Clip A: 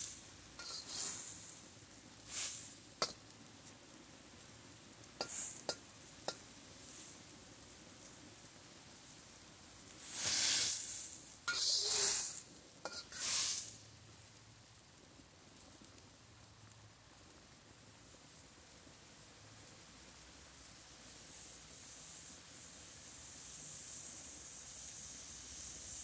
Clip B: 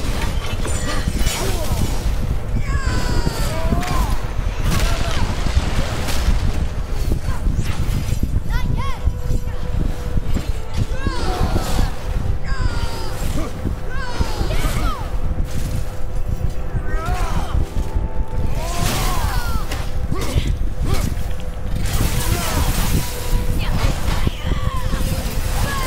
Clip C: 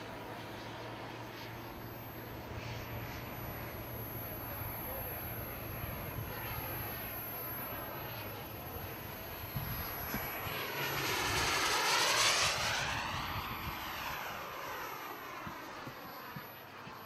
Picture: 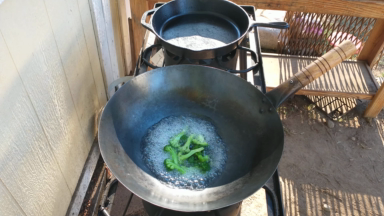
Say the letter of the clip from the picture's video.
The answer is A